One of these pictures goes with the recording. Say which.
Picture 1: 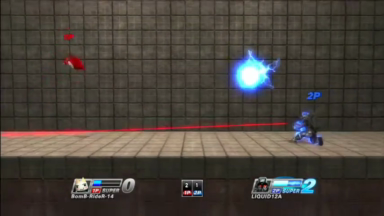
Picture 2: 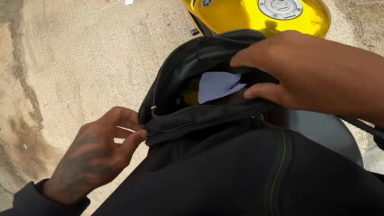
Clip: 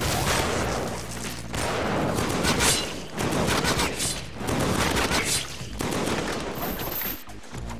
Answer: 1